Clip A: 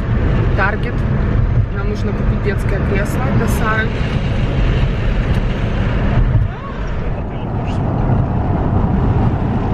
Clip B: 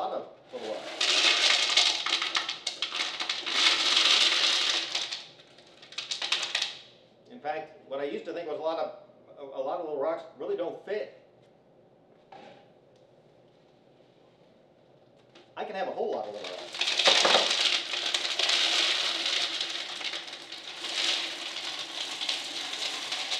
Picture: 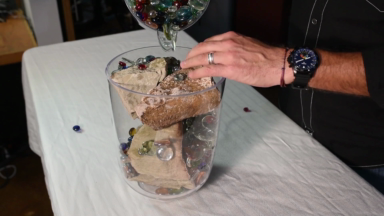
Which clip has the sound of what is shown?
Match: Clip B